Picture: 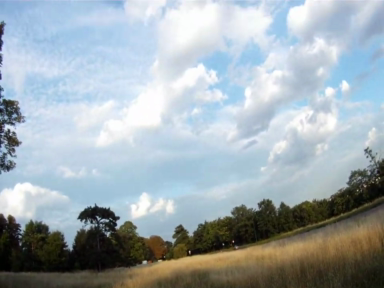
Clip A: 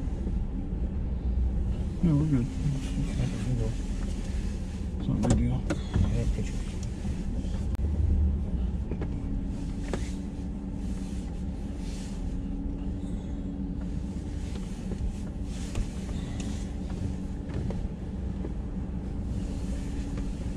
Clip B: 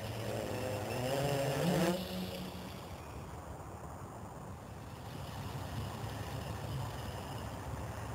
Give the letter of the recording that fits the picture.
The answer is B